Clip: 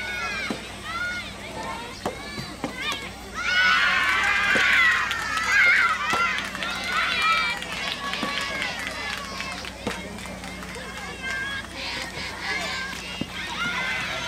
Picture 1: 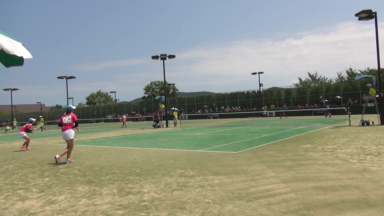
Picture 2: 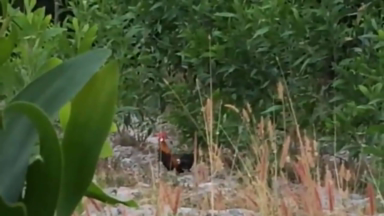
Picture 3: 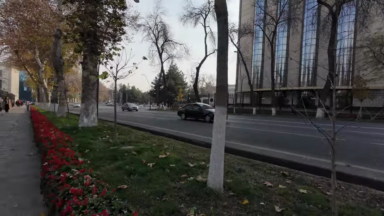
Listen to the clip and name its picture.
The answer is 1